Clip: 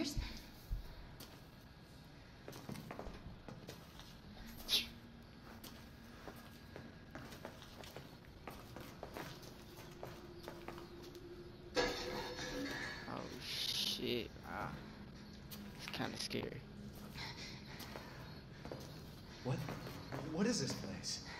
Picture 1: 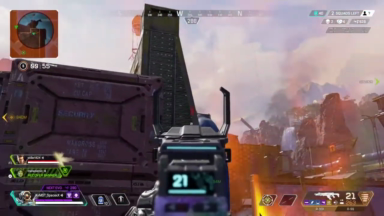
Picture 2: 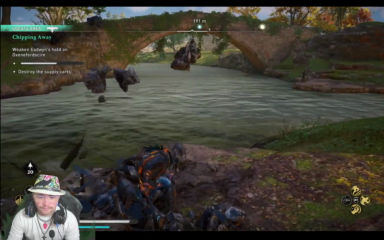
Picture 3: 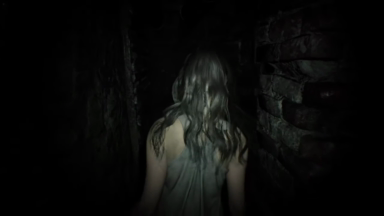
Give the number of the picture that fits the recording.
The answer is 3